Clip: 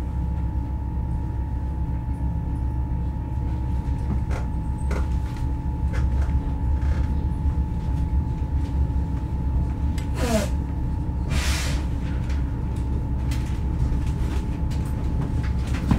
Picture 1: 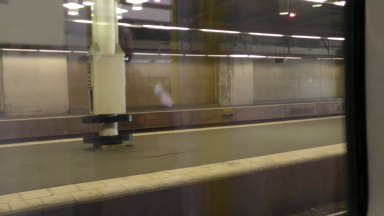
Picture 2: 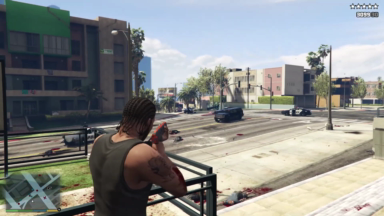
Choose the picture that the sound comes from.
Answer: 1